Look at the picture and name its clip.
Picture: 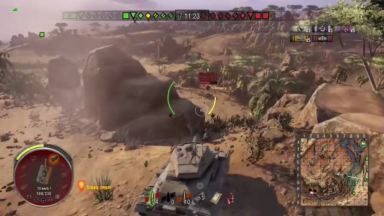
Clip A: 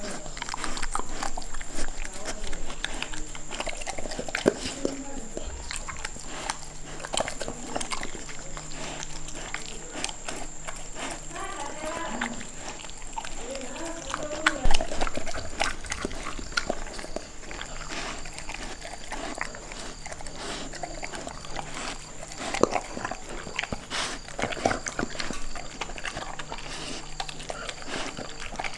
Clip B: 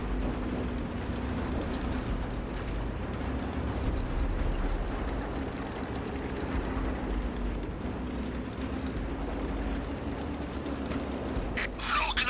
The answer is B